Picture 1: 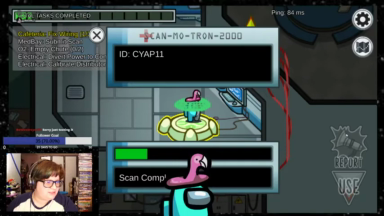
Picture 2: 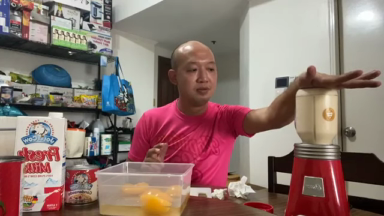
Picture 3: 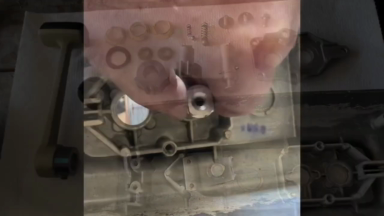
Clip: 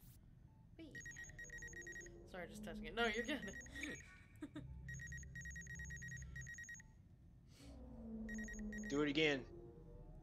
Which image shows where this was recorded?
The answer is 1